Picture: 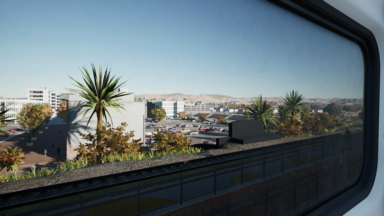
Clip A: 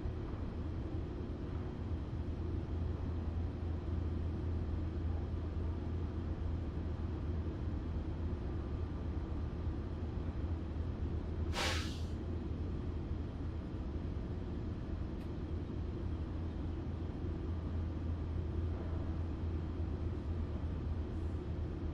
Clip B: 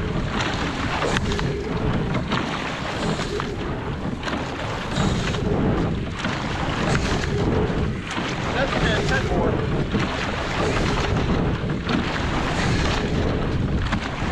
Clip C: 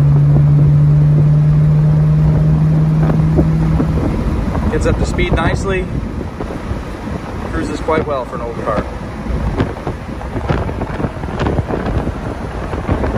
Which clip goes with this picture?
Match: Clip A